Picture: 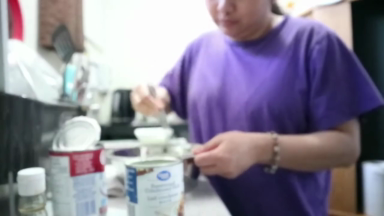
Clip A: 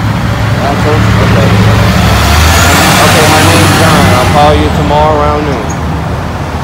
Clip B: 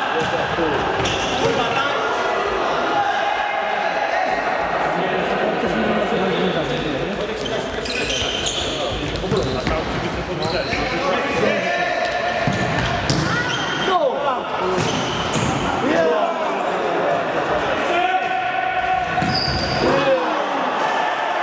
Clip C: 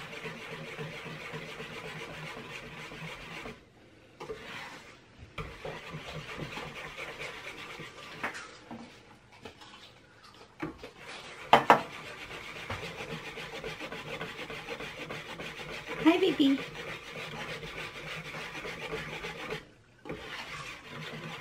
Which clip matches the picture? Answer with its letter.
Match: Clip C